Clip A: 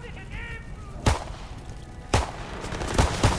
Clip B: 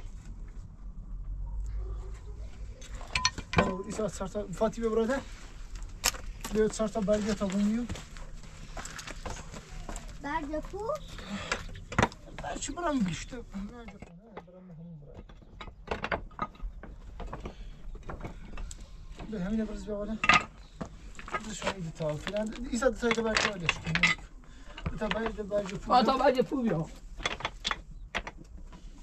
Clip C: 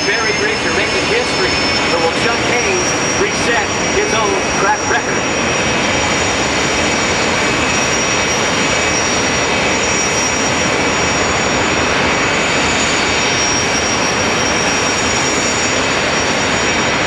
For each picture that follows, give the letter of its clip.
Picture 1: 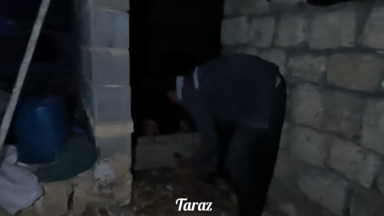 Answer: B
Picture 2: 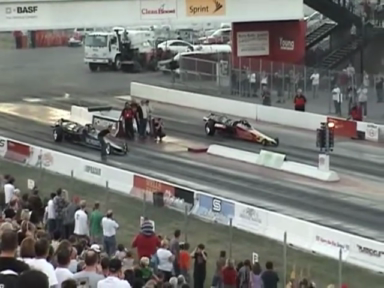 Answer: C